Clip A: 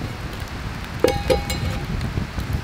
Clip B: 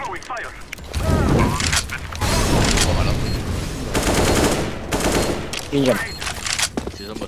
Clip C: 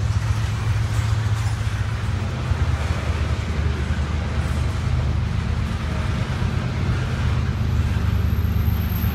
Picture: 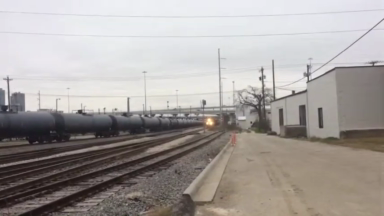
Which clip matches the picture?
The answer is C